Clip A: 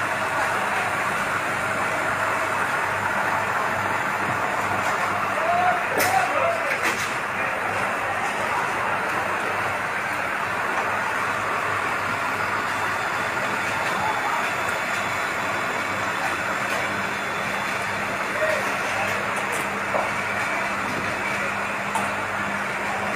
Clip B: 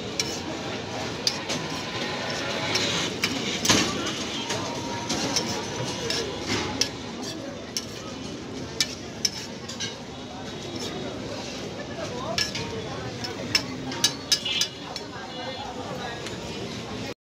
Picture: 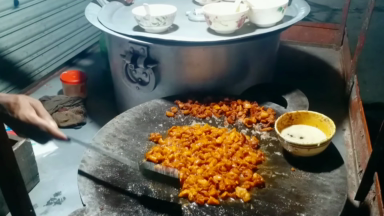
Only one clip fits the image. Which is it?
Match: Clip B